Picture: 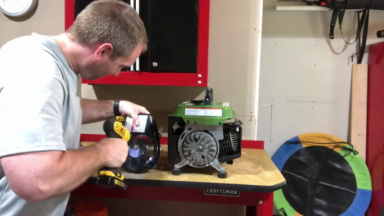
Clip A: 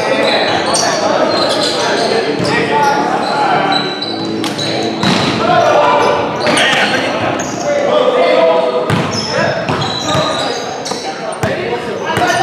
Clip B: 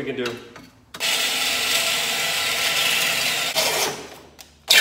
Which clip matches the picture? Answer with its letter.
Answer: B